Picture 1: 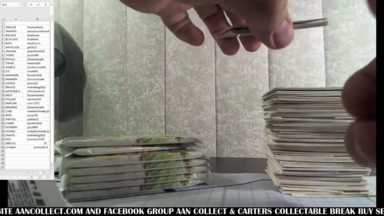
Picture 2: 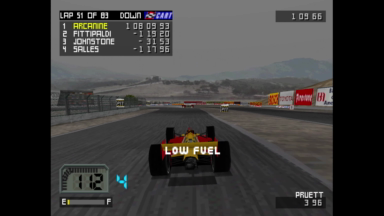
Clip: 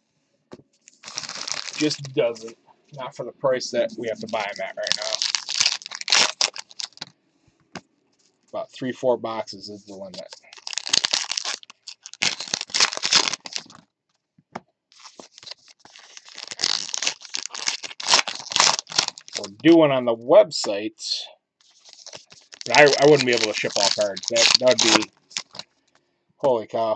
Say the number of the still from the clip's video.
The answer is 1